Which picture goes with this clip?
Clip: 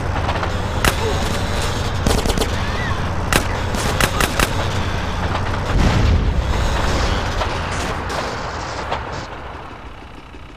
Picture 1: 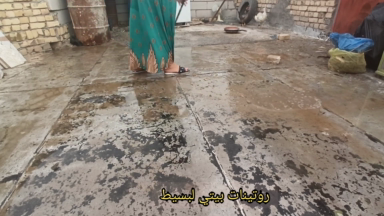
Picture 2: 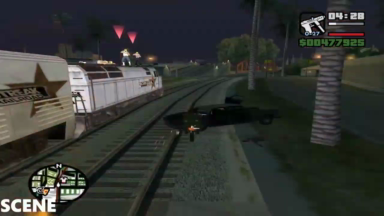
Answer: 2